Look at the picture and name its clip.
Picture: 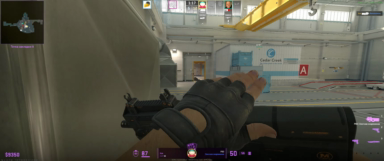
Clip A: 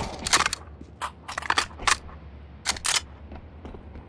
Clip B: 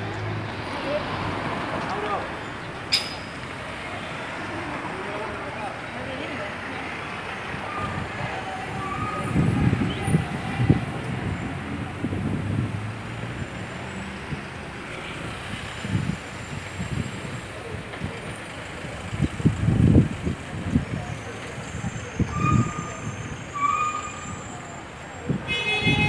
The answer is A